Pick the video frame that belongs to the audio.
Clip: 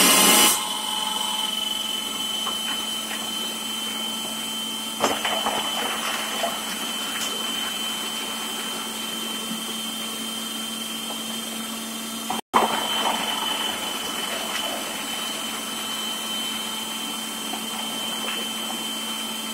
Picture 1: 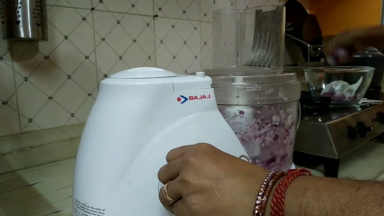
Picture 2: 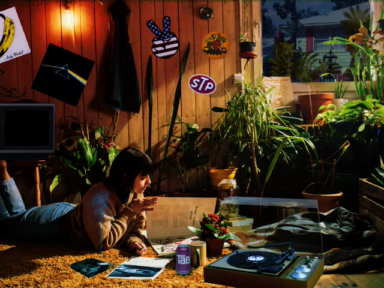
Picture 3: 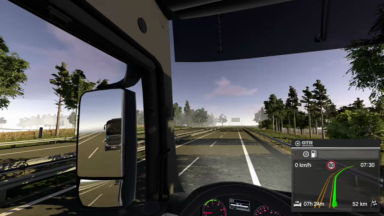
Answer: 1